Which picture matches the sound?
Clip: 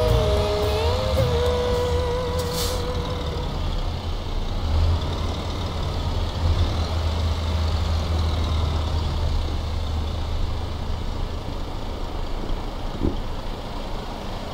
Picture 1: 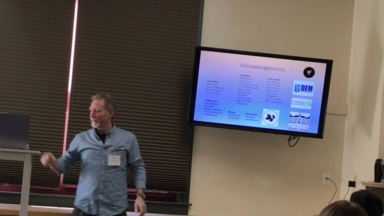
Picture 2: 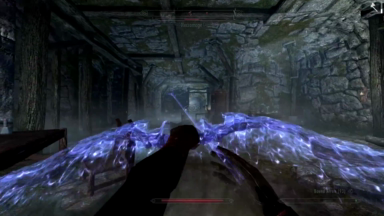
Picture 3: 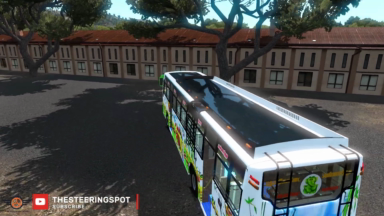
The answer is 3